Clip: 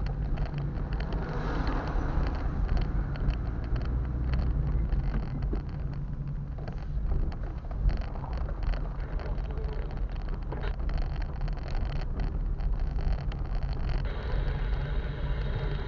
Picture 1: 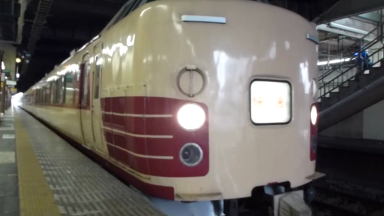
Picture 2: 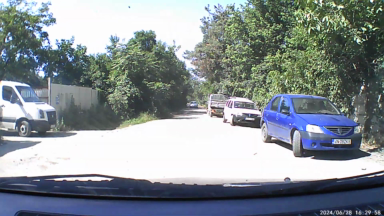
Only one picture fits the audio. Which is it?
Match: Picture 2